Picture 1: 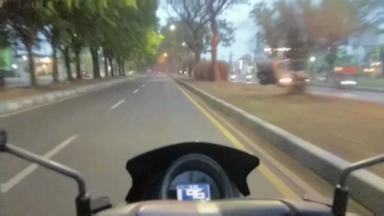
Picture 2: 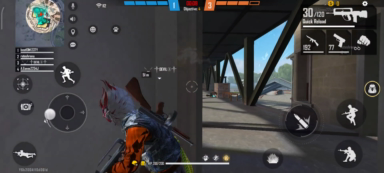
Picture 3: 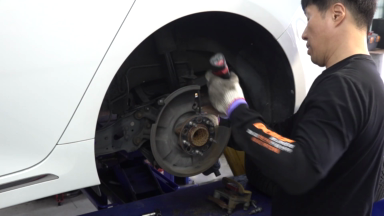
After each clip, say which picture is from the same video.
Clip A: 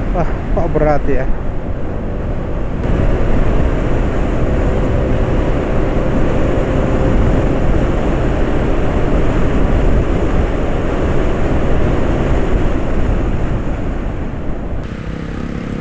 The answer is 1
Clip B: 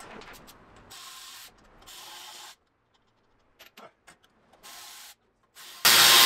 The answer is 3